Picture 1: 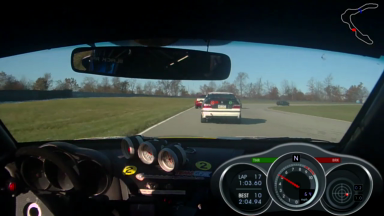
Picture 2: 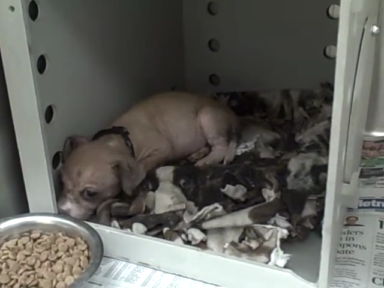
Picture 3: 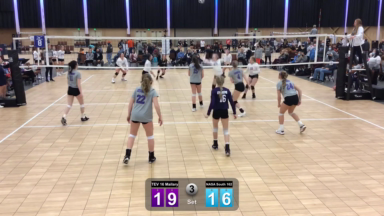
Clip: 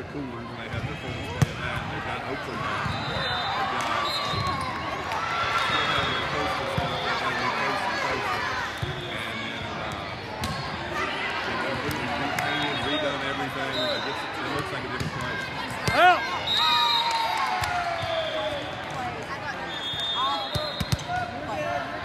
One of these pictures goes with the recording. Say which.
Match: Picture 3